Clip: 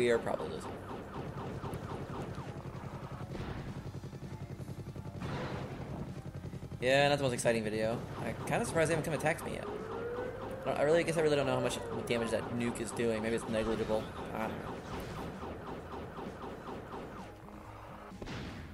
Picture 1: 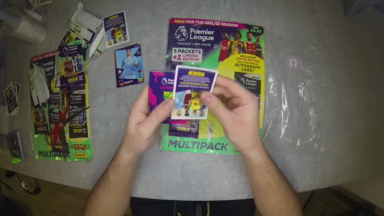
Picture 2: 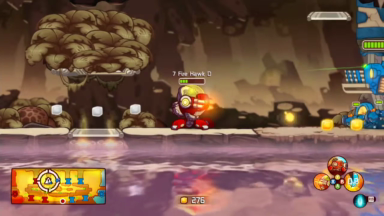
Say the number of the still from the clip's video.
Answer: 2